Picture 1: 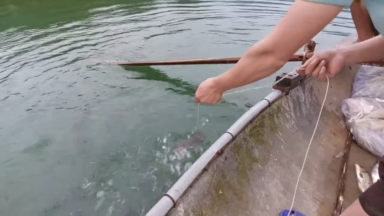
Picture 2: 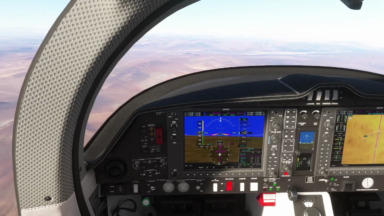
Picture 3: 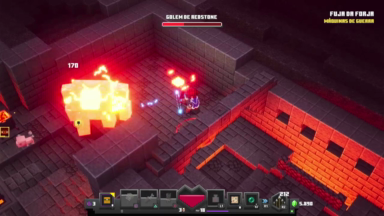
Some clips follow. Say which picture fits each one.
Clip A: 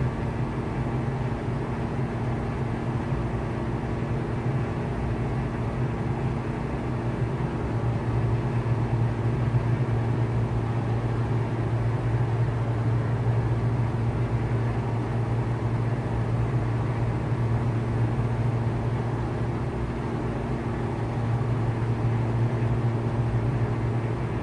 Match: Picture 2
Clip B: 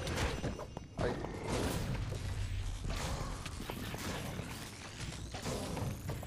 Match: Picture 3